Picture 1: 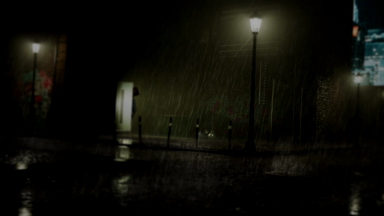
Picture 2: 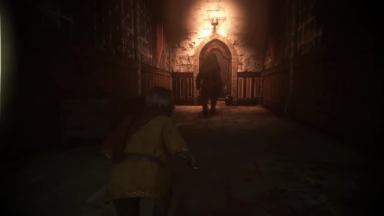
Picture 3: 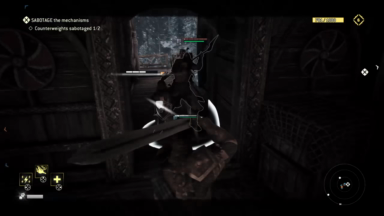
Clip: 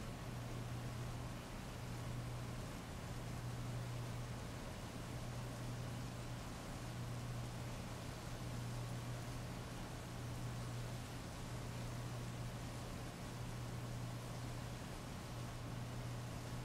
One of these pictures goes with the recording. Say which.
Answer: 1